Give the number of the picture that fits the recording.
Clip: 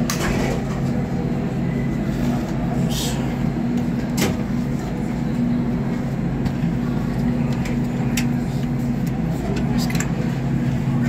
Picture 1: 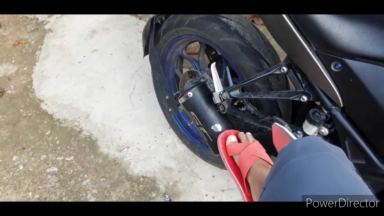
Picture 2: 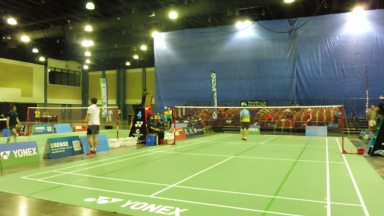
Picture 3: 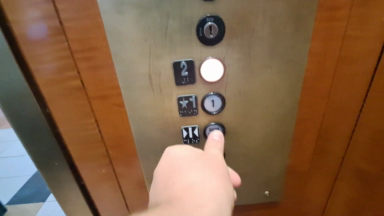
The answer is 3